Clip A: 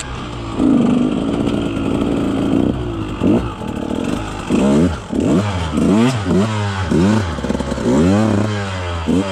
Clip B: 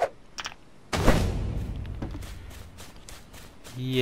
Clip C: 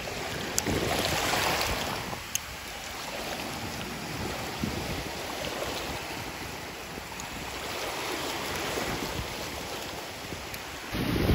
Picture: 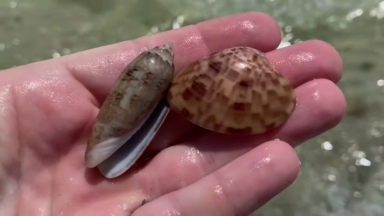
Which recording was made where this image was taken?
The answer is C